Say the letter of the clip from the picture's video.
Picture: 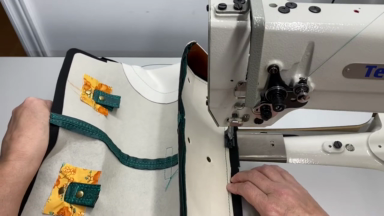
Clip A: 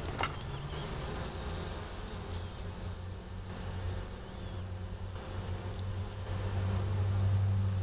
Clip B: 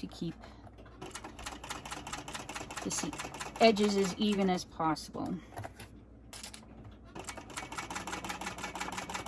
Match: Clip B